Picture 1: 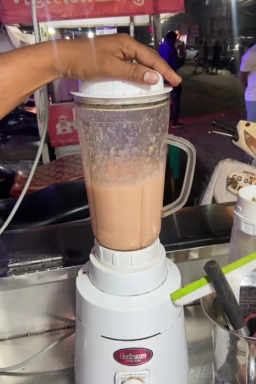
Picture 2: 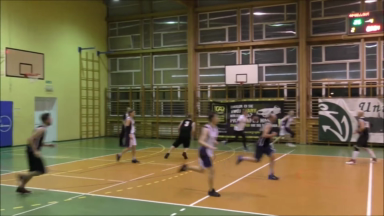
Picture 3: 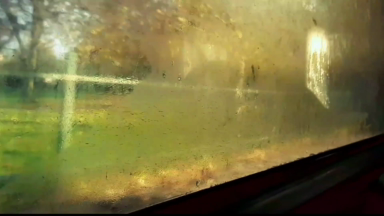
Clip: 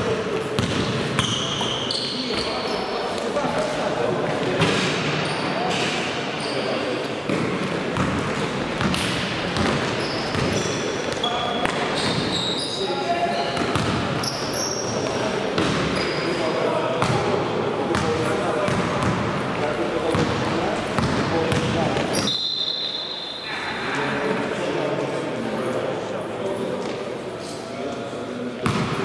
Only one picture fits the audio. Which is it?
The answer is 2